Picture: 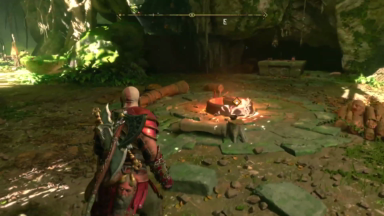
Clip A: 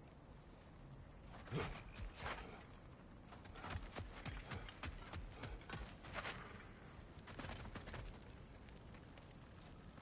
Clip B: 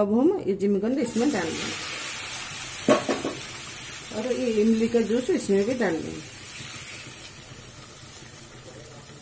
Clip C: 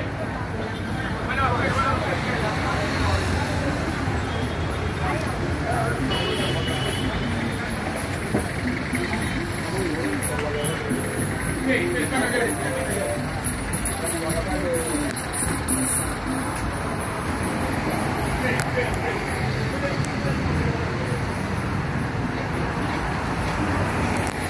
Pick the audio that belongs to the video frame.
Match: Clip A